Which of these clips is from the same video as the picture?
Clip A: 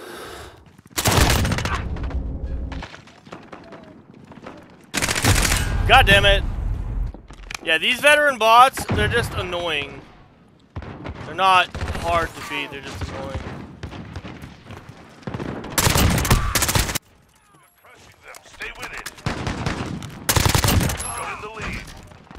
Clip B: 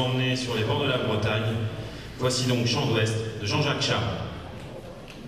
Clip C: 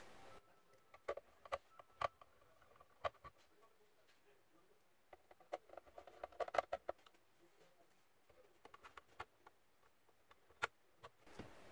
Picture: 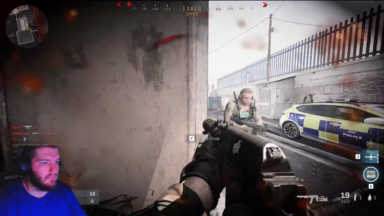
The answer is A